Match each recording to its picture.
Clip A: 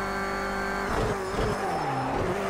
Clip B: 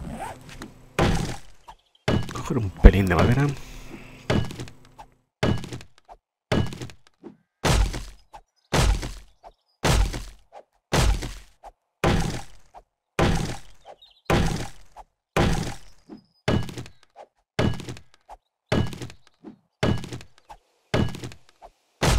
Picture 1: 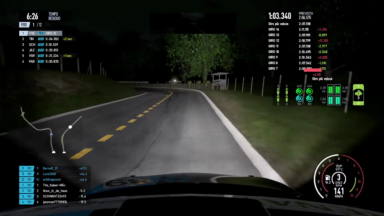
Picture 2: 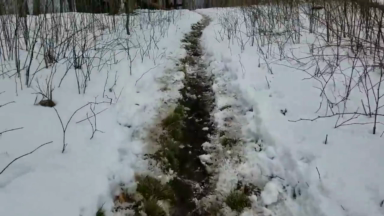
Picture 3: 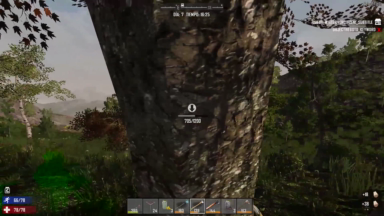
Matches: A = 1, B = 3